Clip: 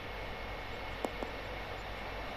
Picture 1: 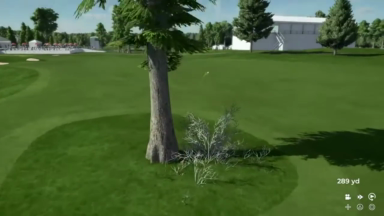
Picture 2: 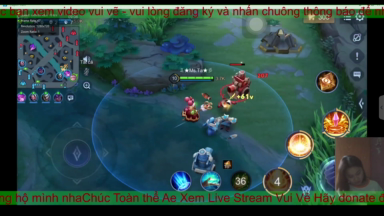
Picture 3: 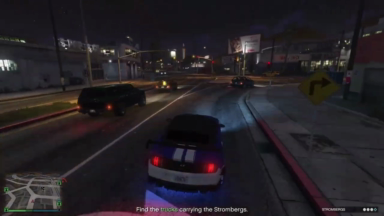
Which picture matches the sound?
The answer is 1